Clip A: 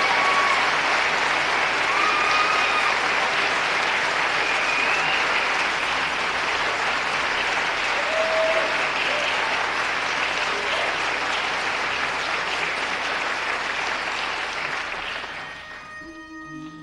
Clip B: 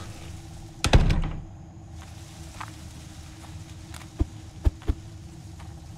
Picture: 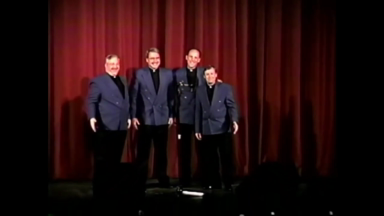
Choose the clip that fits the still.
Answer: A